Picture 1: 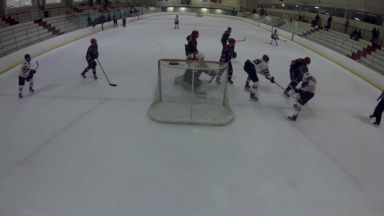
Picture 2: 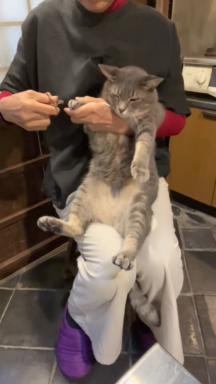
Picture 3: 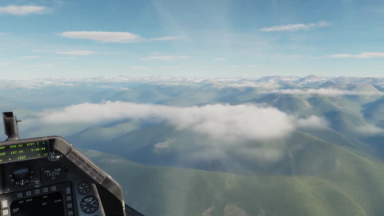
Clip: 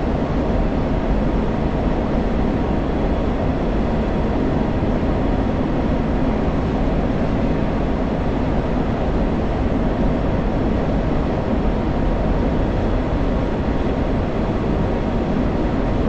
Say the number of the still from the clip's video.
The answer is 3